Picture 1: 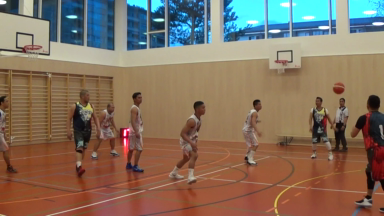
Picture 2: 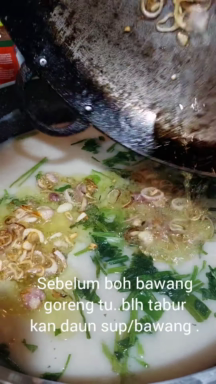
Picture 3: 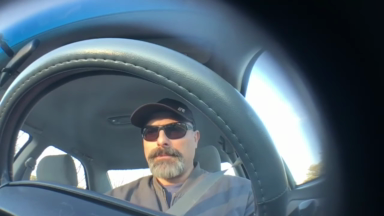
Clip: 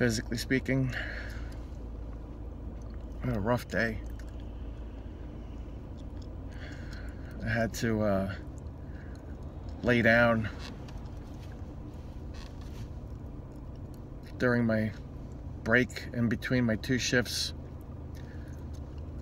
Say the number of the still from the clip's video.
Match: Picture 3